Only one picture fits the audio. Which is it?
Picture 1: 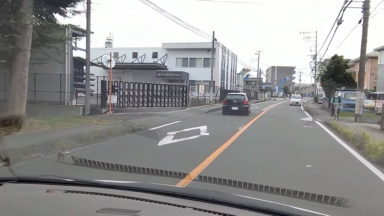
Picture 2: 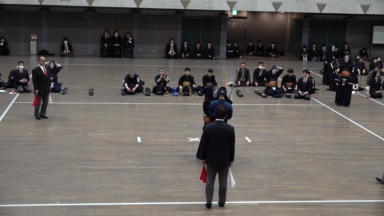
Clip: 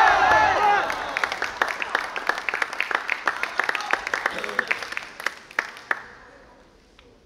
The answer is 2